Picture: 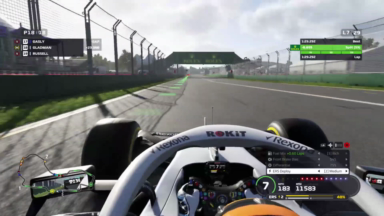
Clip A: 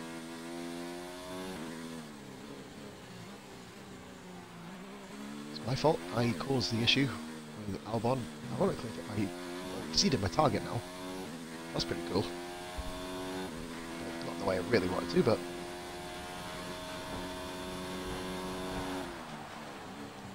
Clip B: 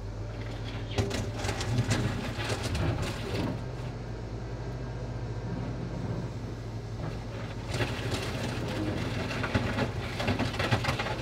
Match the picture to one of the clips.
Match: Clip A